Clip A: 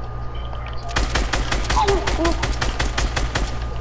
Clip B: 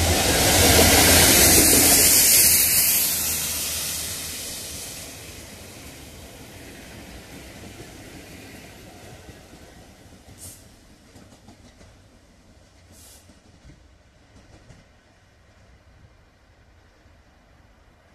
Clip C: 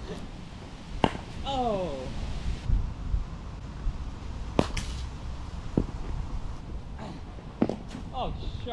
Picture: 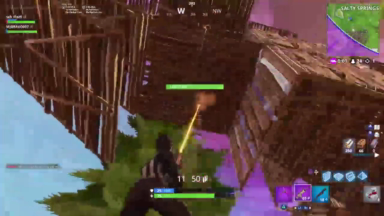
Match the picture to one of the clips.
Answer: A